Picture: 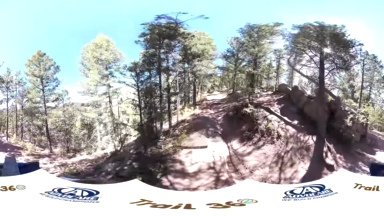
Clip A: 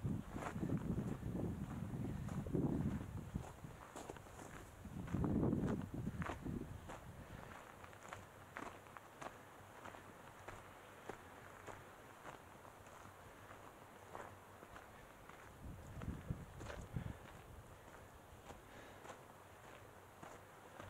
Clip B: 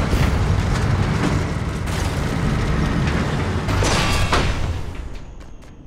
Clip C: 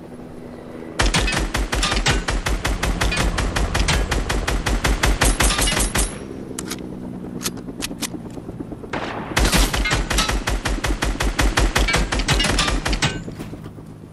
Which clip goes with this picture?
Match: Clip A